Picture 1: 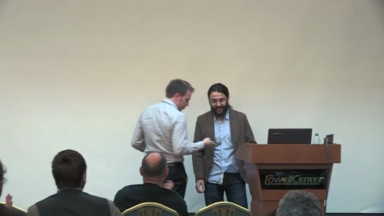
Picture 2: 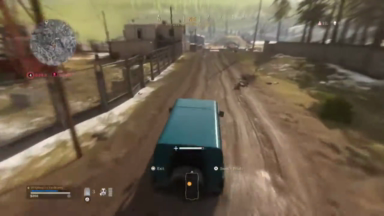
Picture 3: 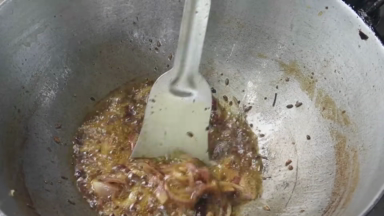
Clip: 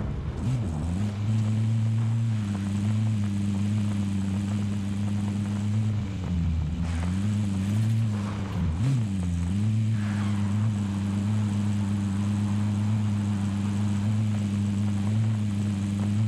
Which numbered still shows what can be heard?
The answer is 2